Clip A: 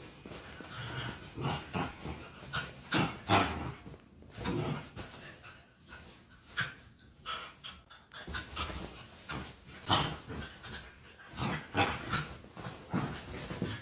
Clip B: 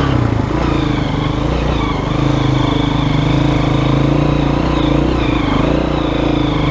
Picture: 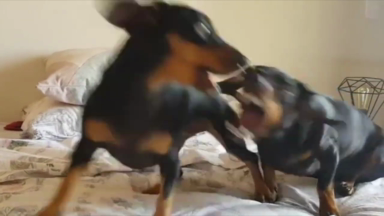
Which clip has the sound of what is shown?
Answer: A